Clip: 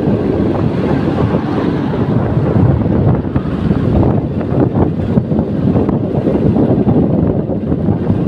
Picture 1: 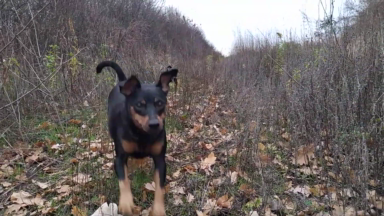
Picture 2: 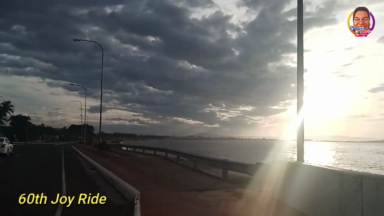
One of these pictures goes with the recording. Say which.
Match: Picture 2